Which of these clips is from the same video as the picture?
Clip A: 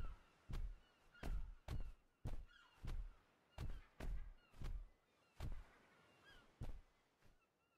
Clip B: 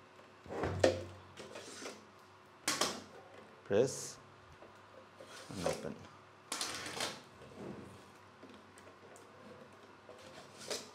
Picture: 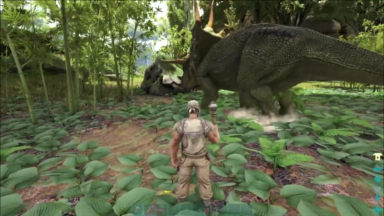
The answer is A